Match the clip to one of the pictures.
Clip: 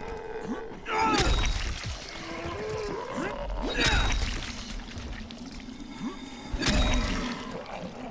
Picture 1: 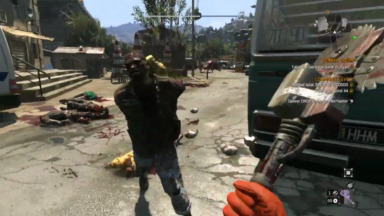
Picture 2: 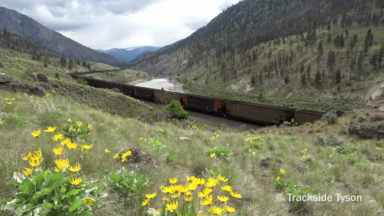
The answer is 1